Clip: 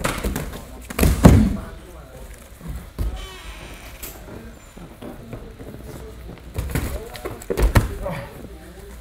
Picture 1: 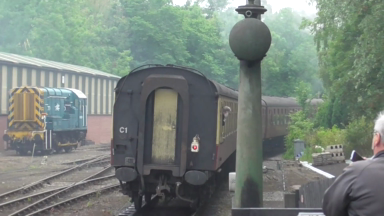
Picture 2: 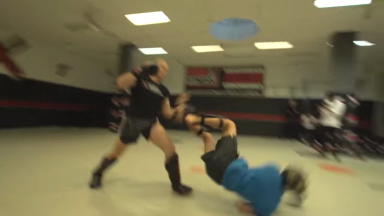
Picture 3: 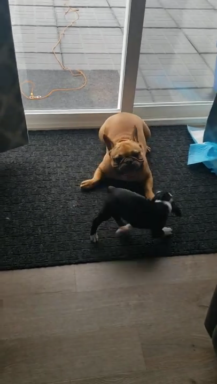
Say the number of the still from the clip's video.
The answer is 2